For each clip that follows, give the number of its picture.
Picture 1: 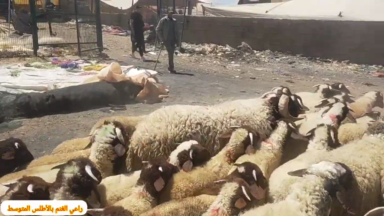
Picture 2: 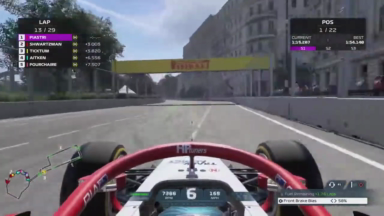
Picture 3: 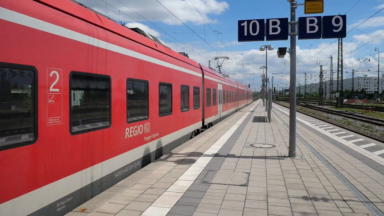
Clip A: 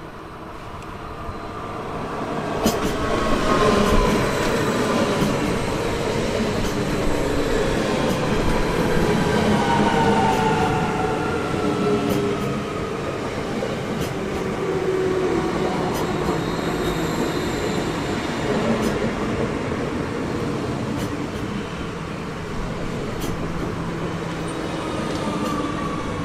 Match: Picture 3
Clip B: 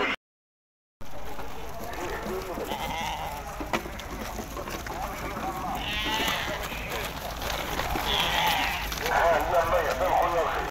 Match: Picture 1